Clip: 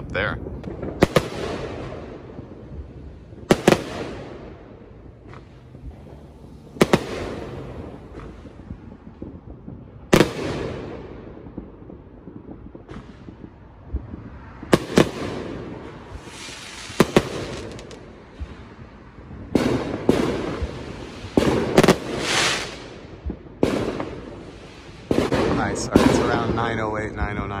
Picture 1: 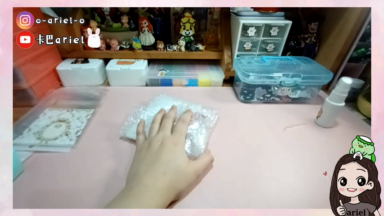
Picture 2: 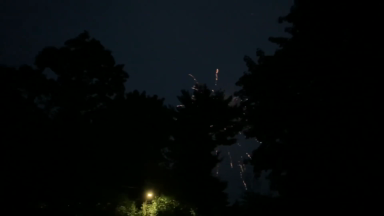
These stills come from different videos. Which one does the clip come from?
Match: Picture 2